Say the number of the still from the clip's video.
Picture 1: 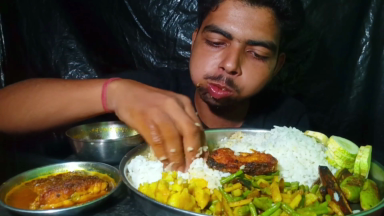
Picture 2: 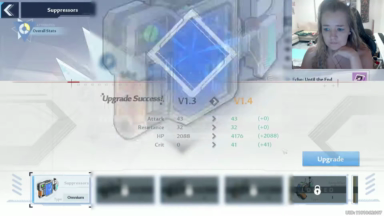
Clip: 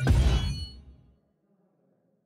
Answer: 2